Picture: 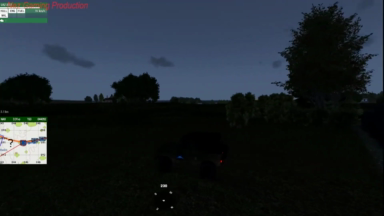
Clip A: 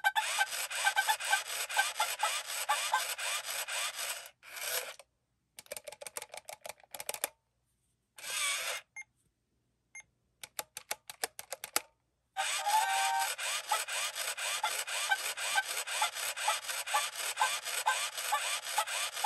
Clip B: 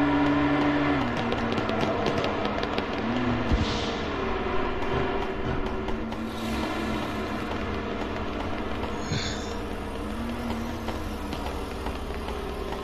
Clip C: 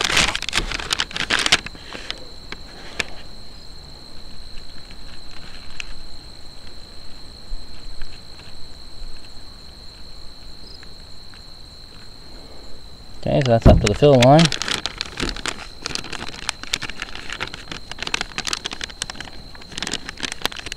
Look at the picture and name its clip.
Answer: B